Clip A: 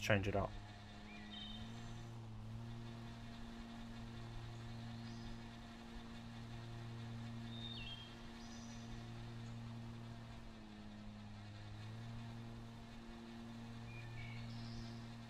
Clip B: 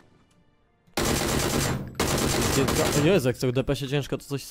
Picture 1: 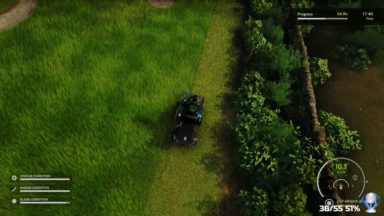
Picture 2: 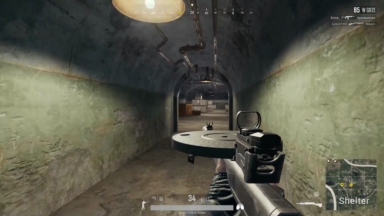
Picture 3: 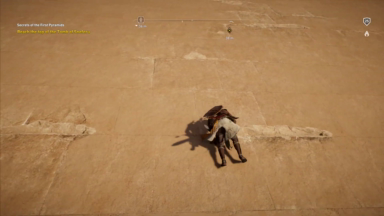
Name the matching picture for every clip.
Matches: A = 1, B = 2